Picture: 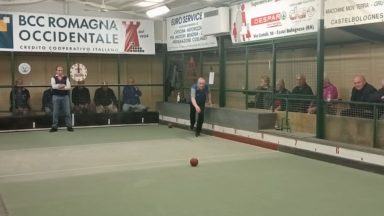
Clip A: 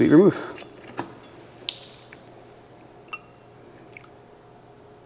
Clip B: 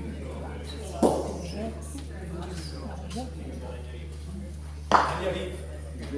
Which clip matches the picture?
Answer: B